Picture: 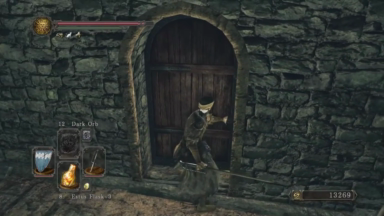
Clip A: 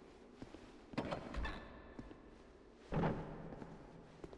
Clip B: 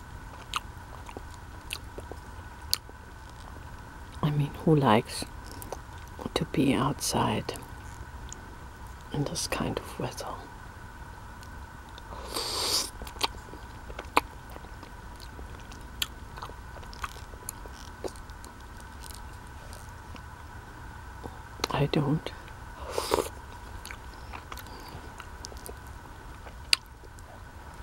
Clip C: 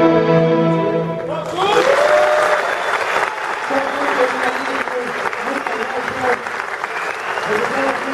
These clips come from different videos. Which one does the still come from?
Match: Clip A